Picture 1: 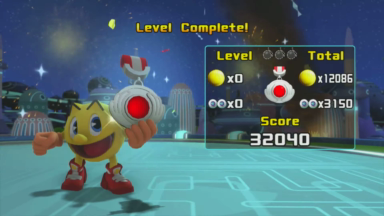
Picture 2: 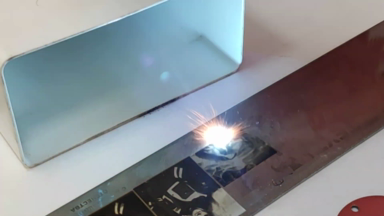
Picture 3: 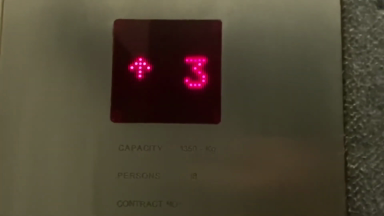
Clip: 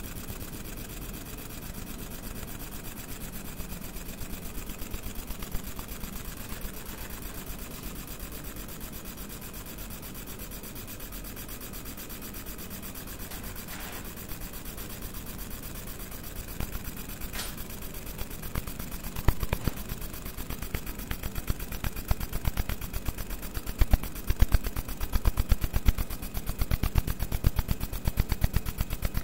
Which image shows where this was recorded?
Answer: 2